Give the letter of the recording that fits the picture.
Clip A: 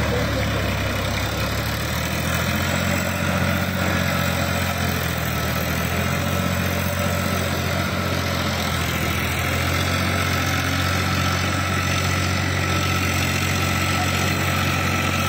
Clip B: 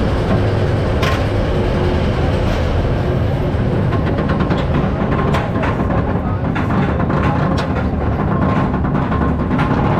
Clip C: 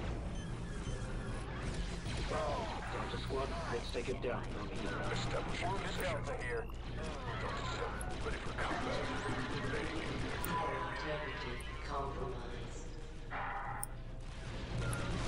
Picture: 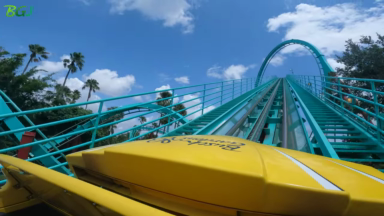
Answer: B